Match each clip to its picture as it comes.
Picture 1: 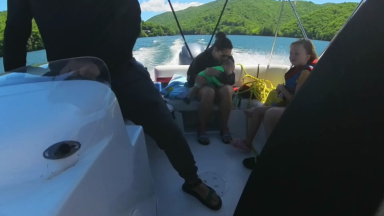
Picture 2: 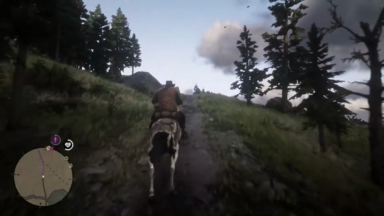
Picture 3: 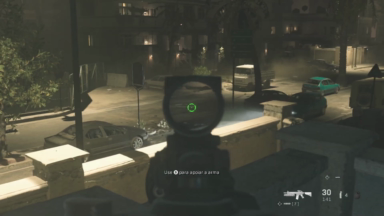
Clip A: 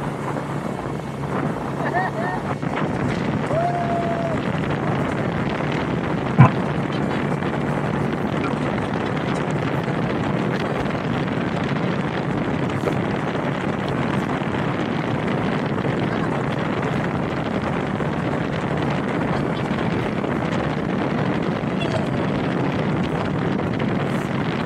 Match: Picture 1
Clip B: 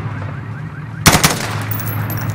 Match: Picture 3